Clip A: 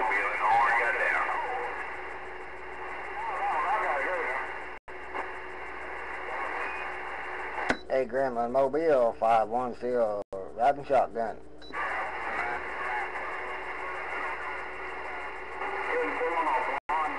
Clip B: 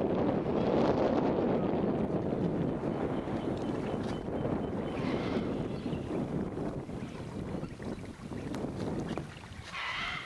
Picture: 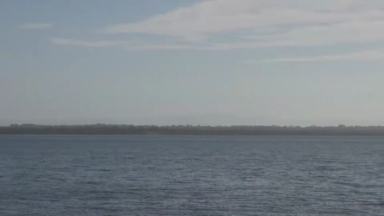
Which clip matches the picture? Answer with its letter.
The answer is B